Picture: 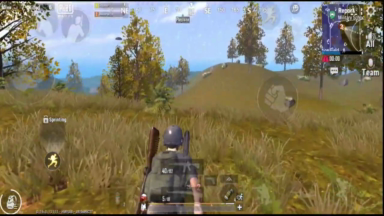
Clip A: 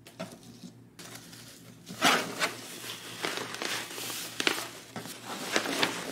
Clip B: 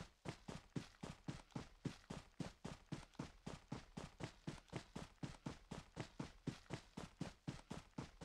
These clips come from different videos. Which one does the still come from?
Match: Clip B